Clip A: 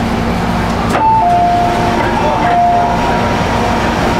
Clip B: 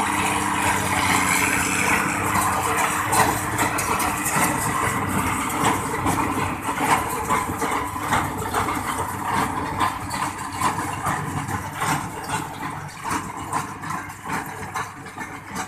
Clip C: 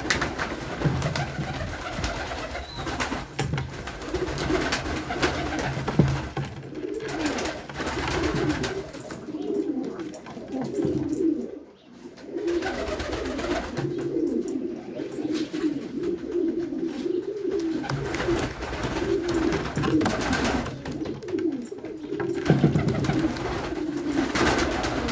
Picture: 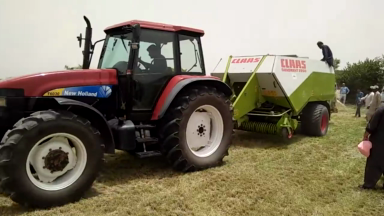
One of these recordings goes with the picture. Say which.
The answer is B